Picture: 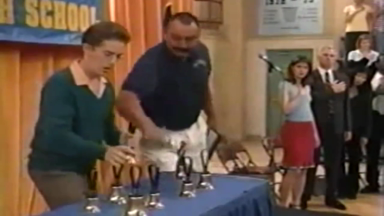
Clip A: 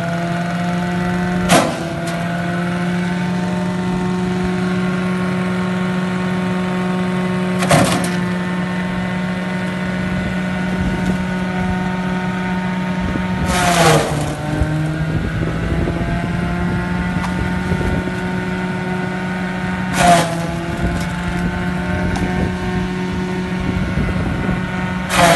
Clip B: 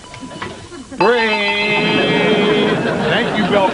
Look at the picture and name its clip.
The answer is B